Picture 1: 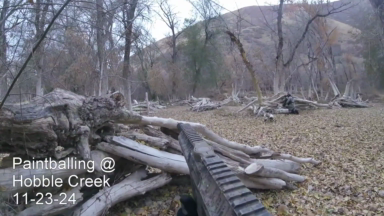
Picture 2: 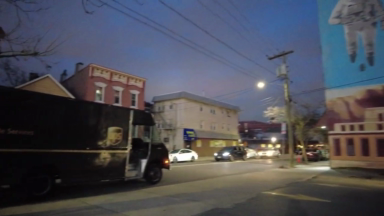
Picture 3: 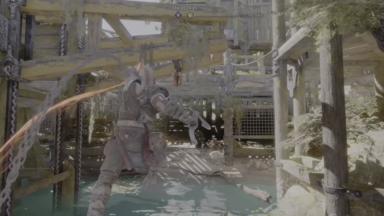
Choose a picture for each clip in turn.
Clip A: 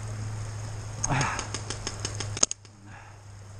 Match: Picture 1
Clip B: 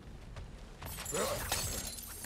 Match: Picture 3